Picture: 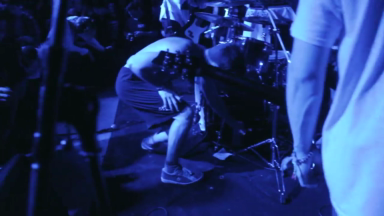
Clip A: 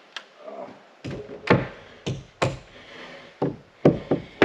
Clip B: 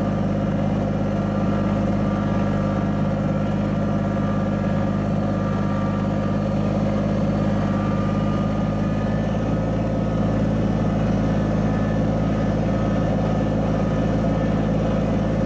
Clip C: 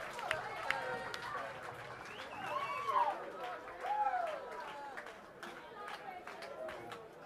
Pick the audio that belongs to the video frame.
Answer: C